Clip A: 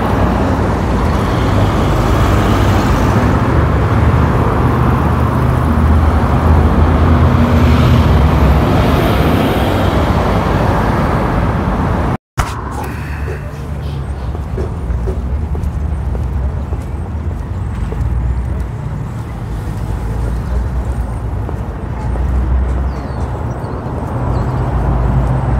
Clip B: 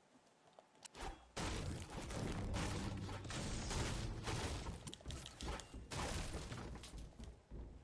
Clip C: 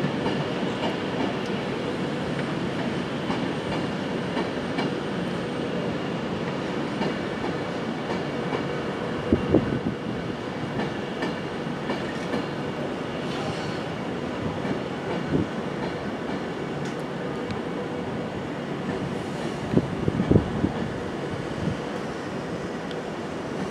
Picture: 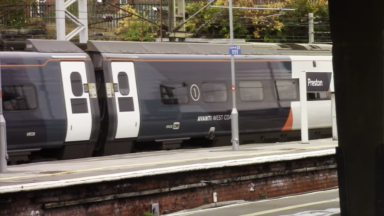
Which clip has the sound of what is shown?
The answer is C